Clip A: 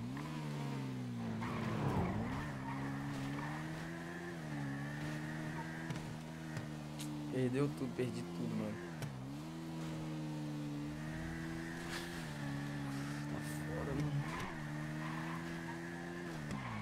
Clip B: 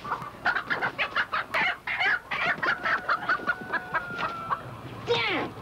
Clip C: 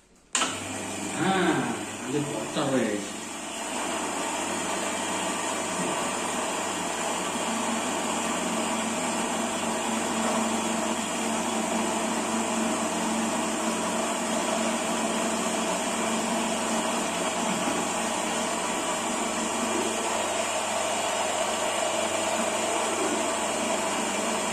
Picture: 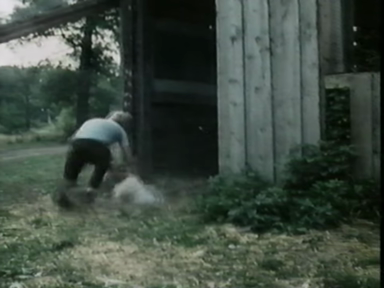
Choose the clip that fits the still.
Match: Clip B